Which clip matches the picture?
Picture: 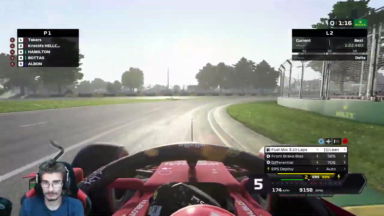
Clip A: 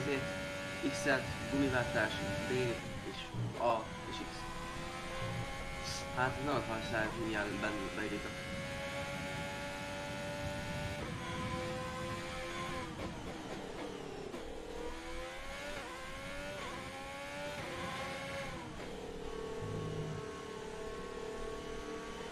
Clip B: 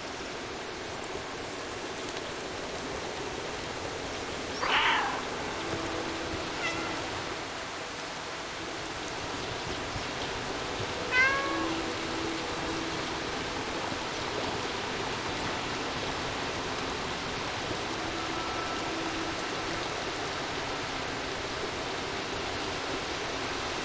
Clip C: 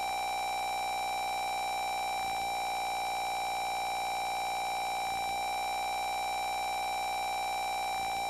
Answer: A